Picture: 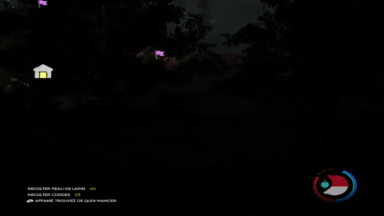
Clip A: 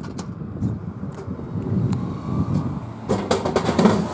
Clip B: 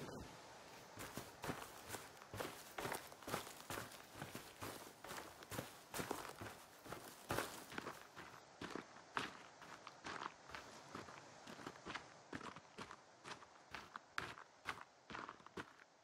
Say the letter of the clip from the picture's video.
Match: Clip B